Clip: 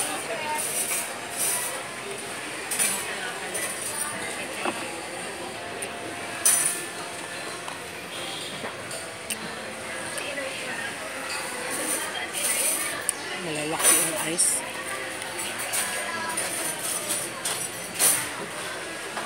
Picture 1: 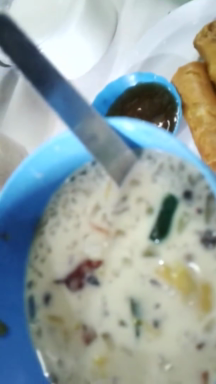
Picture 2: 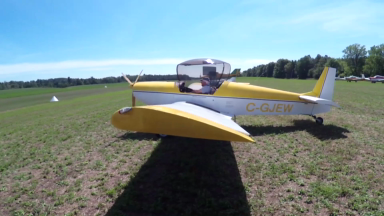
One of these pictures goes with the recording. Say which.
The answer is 1